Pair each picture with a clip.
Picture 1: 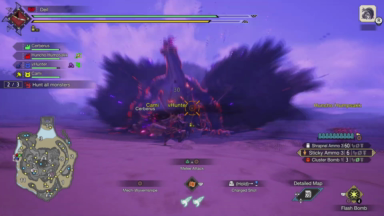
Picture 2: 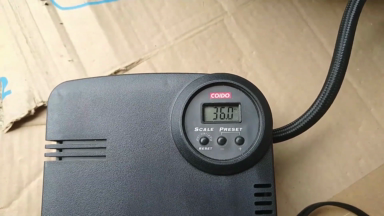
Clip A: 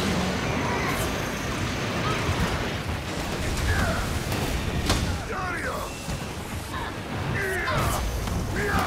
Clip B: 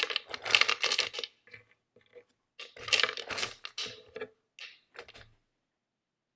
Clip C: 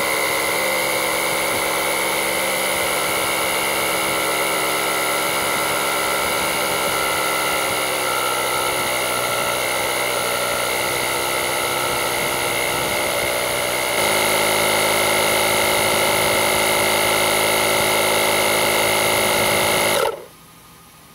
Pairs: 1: A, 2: C